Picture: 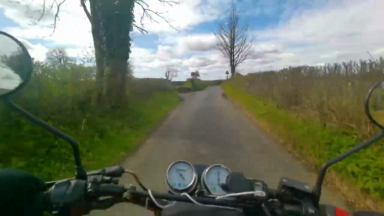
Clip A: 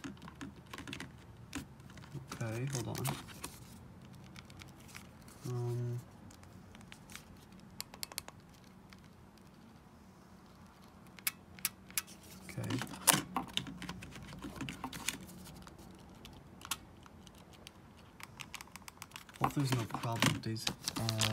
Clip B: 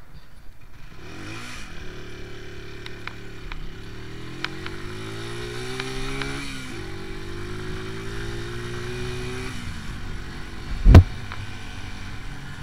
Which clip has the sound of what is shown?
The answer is B